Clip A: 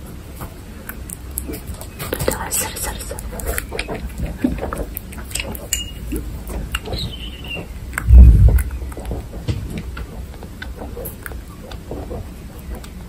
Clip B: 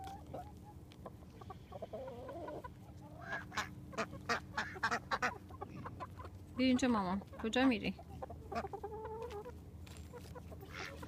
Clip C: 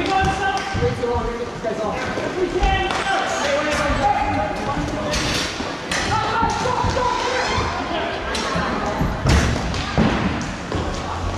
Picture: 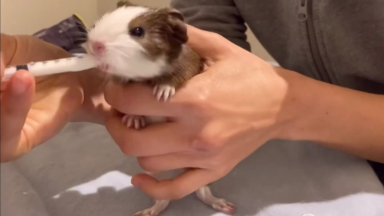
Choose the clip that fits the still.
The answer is A